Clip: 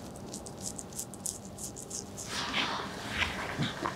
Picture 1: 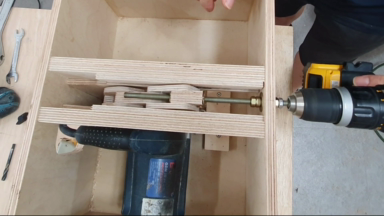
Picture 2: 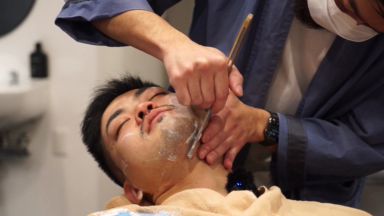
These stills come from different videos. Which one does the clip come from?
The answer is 2